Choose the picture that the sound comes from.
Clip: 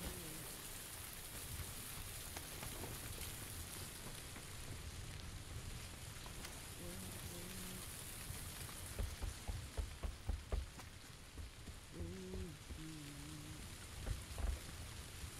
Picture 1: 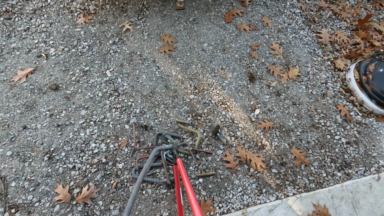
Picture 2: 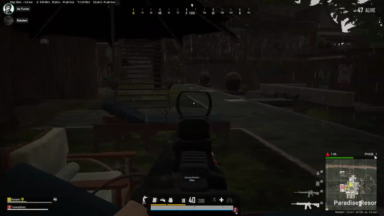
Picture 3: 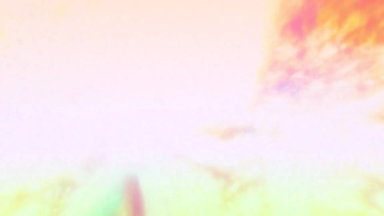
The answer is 2